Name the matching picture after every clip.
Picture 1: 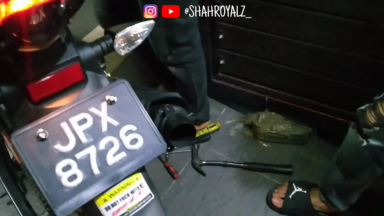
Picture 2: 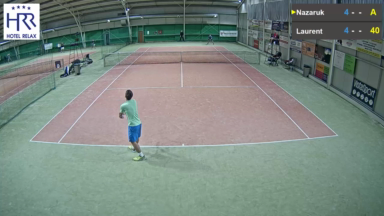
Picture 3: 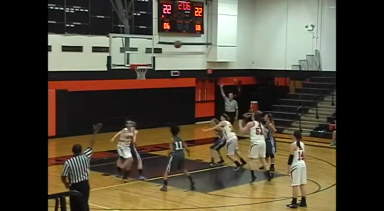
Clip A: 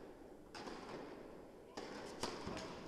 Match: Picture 2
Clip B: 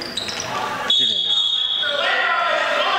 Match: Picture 3